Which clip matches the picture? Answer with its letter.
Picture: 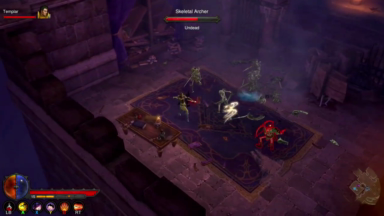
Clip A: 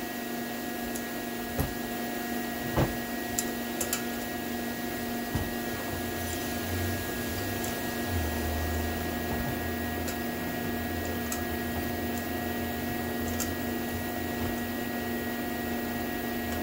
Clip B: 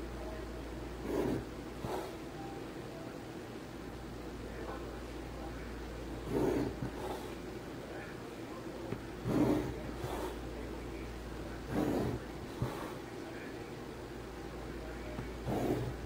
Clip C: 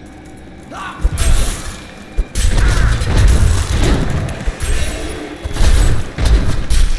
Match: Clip C